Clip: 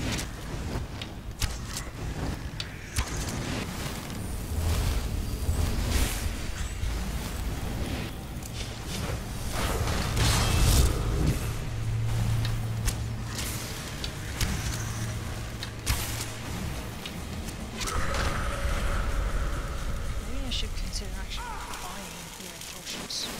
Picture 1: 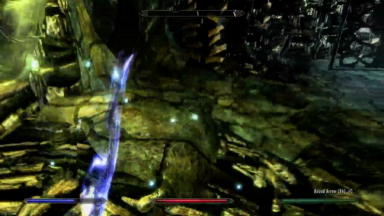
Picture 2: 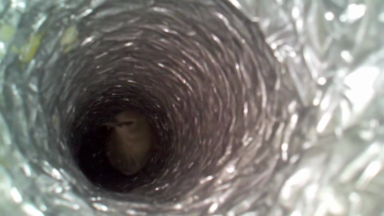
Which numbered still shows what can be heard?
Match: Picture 1